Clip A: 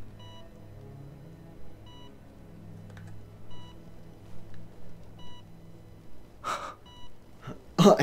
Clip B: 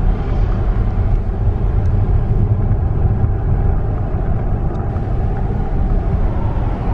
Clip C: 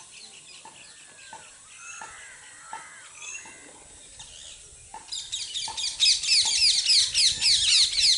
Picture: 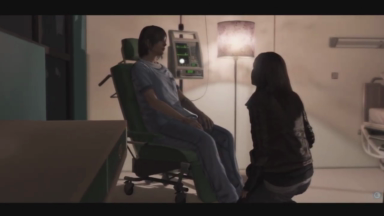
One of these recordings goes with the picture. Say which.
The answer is A